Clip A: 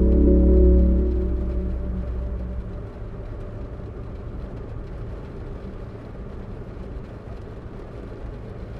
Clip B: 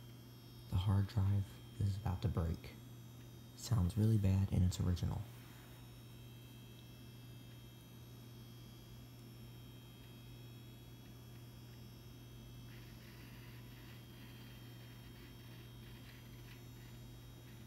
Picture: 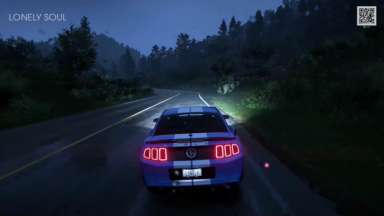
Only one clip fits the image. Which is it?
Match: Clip A